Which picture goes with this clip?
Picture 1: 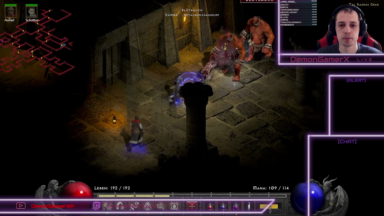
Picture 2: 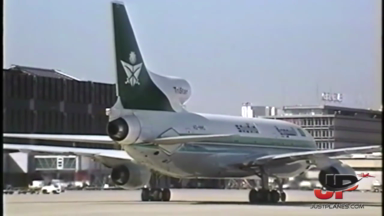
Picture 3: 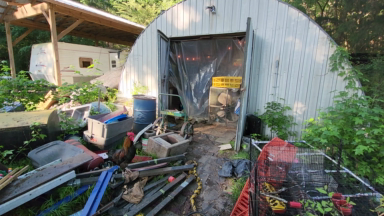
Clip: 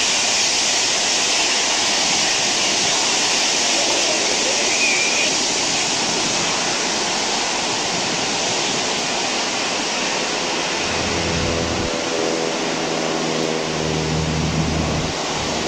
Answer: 2